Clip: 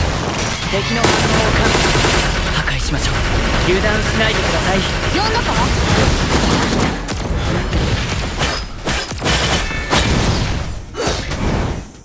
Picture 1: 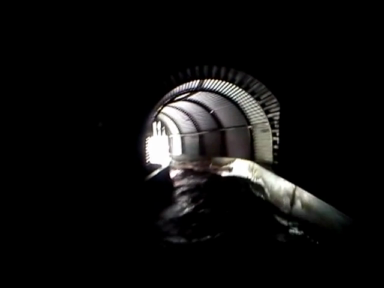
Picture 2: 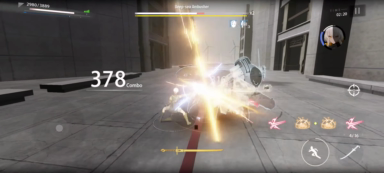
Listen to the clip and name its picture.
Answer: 2